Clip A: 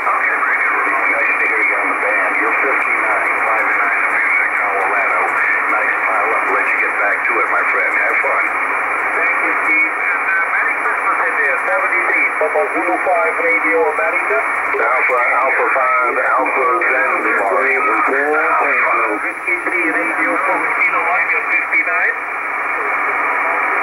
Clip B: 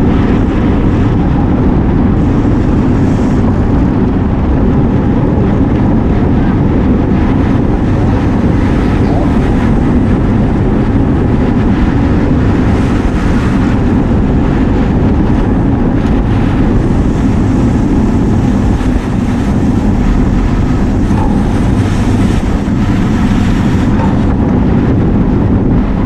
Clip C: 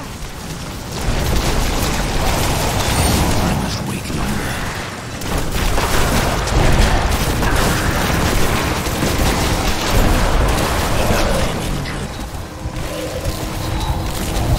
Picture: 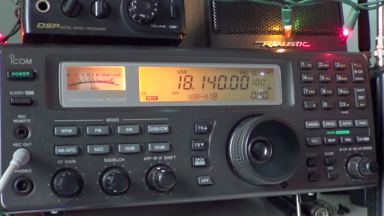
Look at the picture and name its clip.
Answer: A